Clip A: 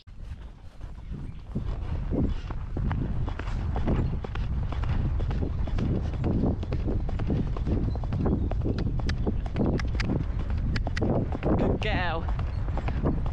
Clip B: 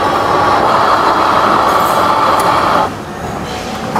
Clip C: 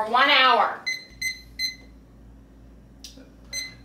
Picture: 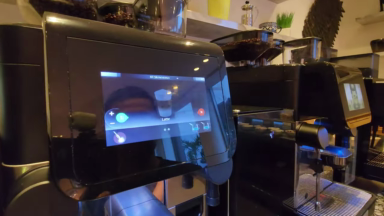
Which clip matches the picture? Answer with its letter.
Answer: B